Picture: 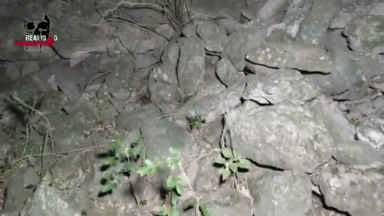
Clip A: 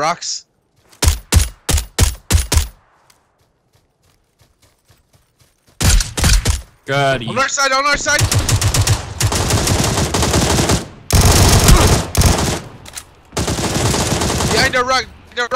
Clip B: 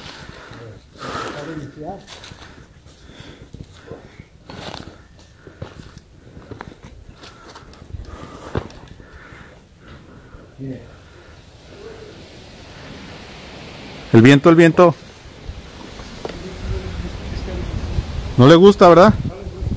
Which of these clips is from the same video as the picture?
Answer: B